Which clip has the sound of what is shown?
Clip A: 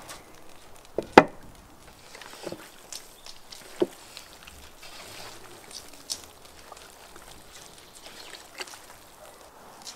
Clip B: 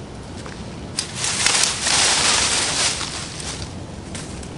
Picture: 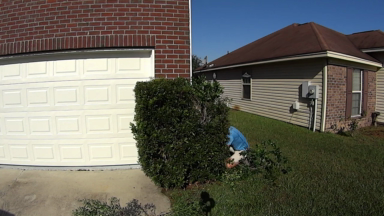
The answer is B